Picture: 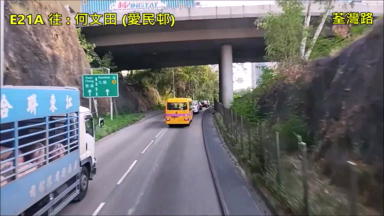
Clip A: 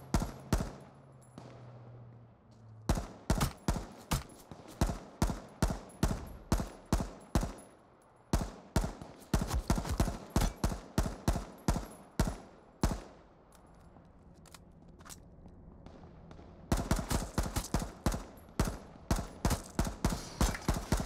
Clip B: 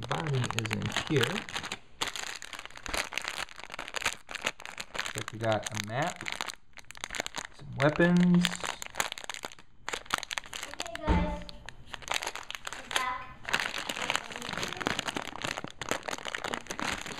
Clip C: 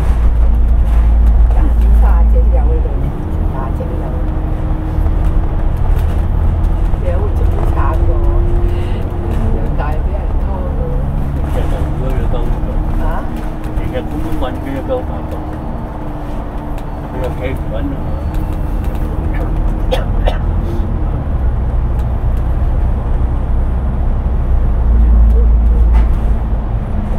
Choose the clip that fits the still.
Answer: C